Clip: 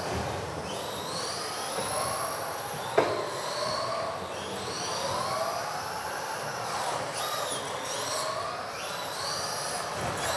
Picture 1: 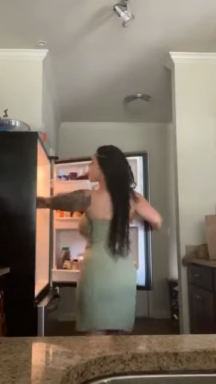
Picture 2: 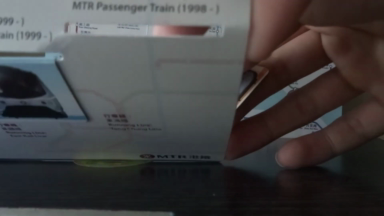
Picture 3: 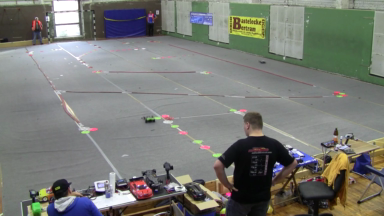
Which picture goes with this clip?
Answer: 3